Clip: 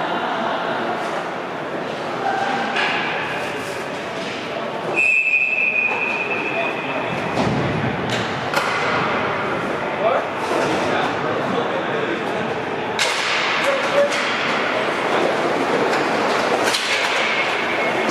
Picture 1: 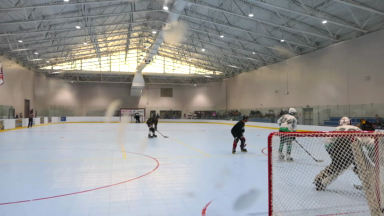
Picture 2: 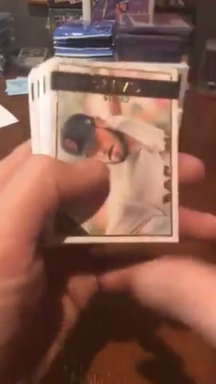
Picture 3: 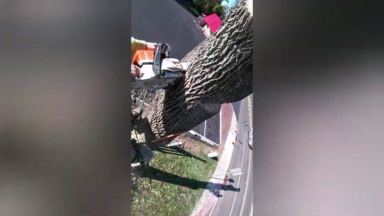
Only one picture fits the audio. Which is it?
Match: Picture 1